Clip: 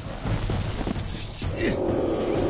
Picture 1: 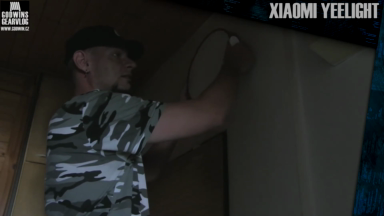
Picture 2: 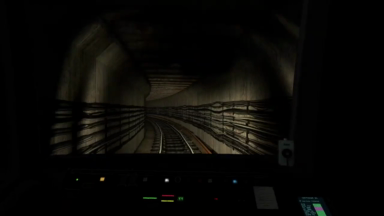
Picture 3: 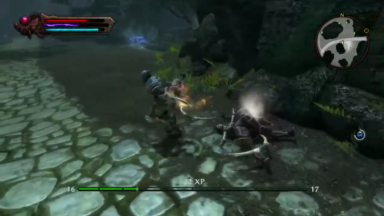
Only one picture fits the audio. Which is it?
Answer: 3